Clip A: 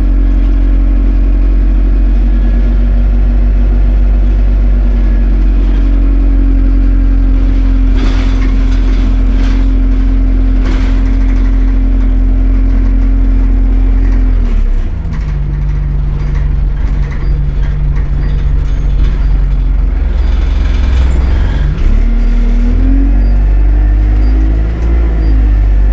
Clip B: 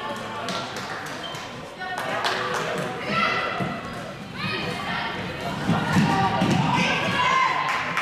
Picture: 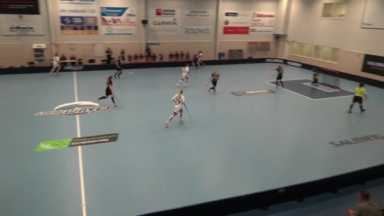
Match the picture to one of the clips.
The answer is B